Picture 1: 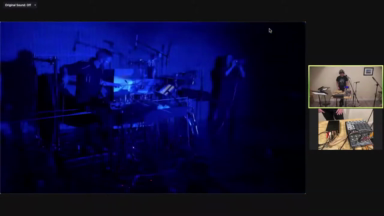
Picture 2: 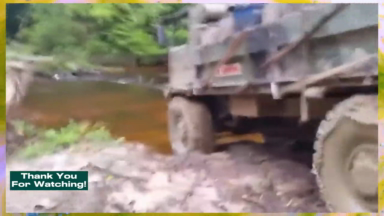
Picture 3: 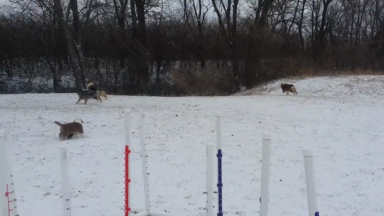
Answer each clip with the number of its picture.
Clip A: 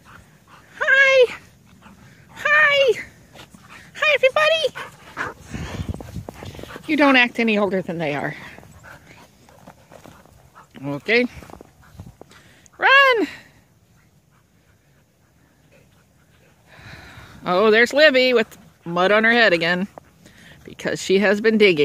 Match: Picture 3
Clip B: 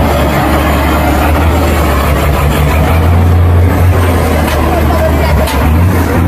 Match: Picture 2